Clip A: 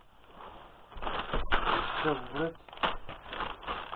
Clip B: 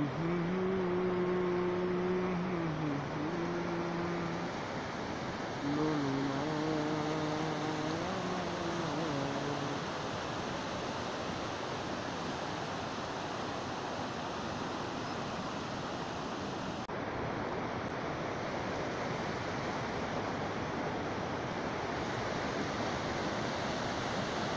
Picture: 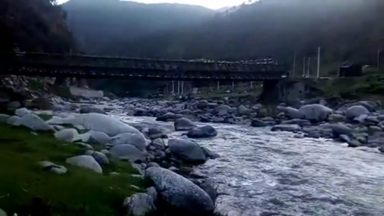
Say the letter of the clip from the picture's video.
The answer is B